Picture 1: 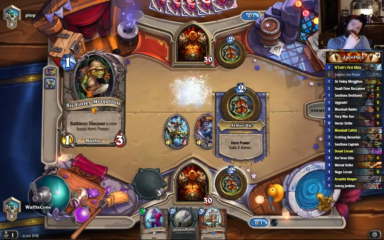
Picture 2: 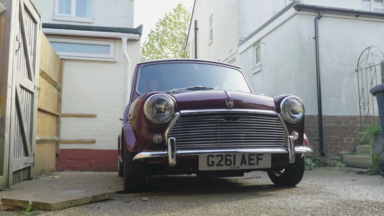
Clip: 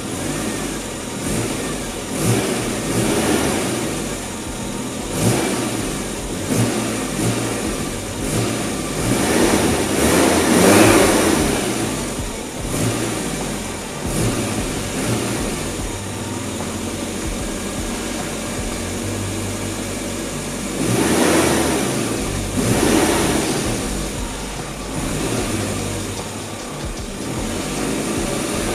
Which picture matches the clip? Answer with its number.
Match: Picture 2